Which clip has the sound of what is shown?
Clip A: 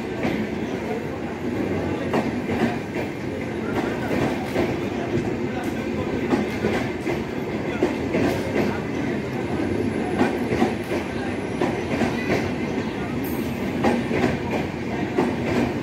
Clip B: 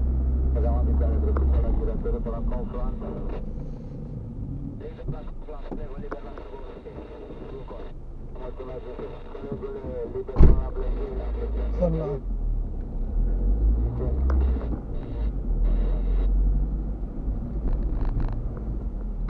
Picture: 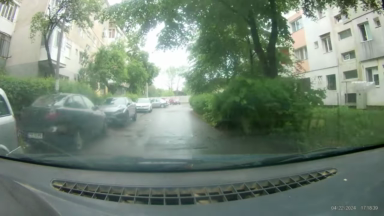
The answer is B